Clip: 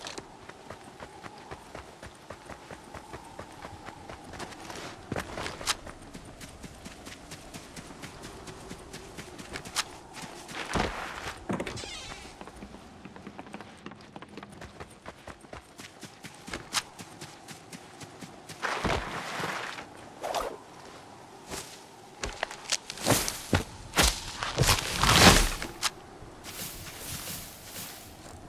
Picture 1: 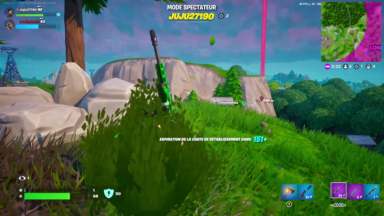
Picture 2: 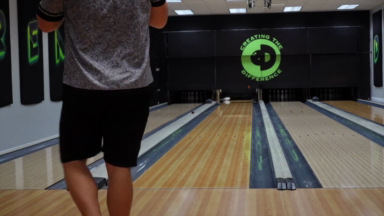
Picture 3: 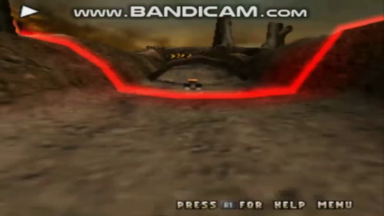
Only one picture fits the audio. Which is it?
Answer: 1